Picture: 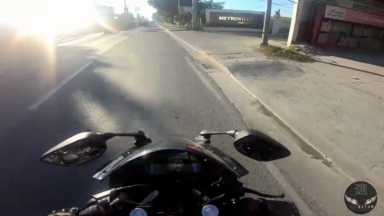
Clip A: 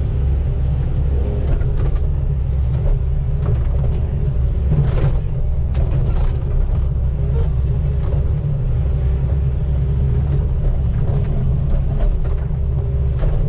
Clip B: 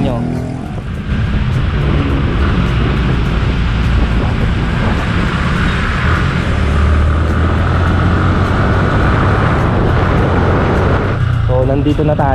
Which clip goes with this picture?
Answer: B